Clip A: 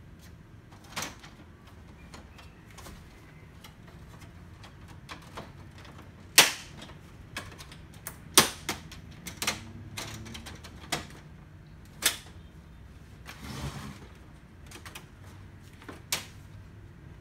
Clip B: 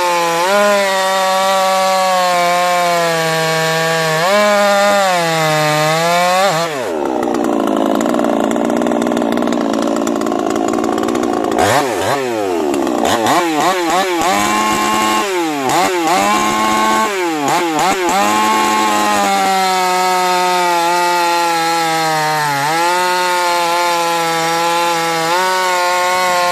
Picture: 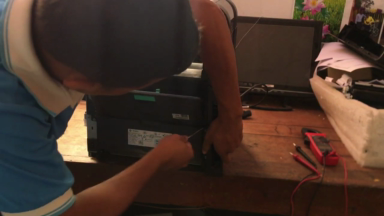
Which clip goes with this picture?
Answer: A